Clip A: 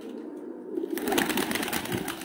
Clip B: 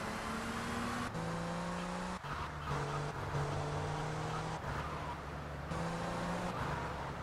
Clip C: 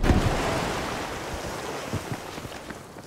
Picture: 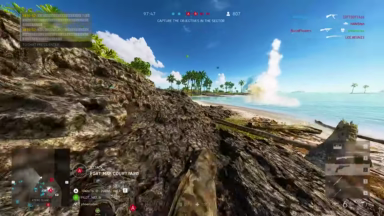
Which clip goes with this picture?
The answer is C